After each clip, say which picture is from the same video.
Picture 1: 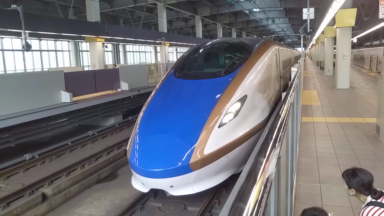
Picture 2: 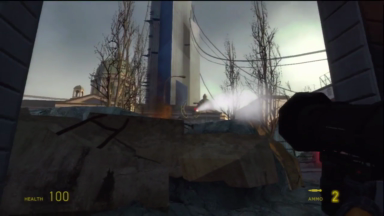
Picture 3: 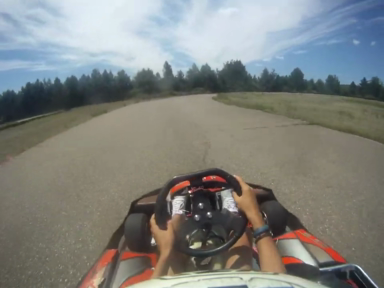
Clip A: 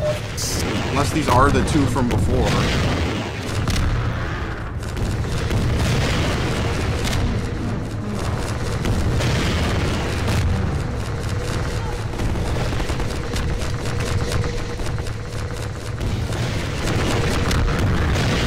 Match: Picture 2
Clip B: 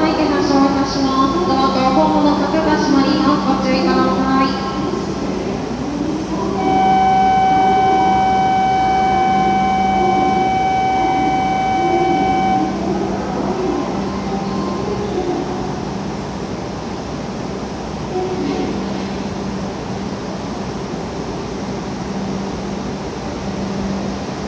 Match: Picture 1